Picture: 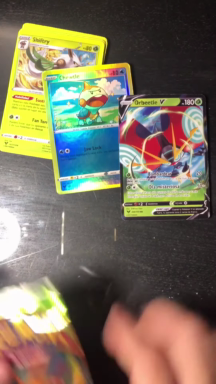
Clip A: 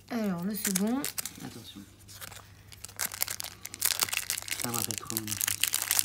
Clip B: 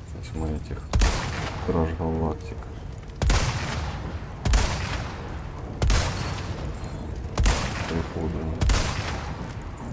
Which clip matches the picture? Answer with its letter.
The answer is A